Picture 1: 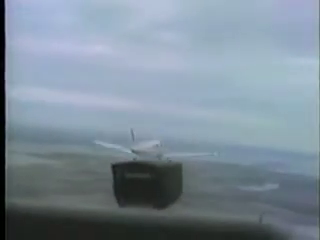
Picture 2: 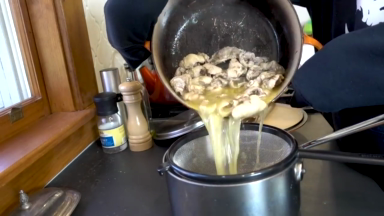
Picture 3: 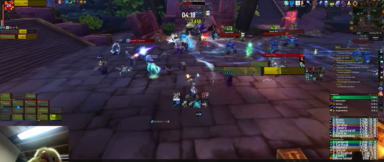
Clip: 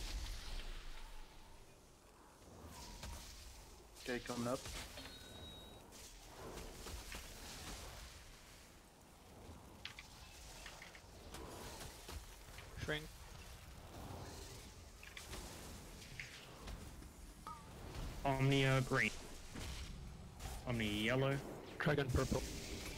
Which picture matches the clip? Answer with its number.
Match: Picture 3